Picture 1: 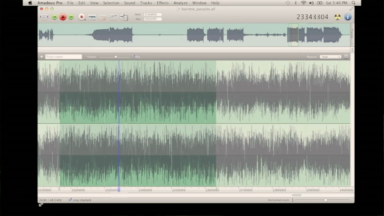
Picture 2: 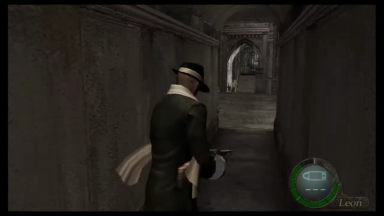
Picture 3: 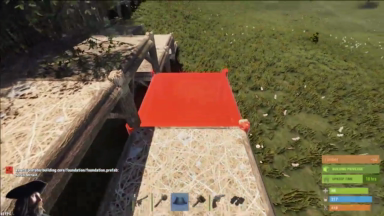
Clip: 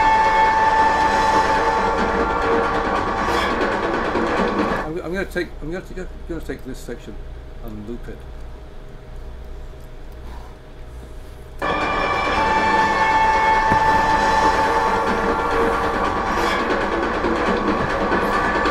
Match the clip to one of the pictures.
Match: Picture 1